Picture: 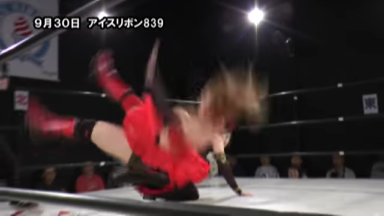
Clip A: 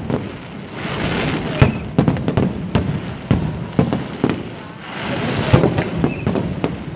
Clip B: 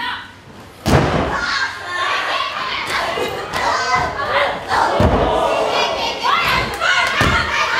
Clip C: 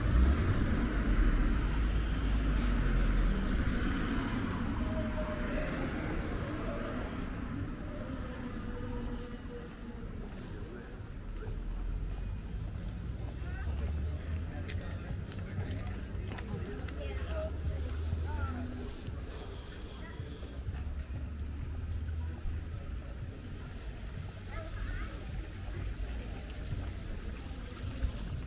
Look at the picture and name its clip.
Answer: B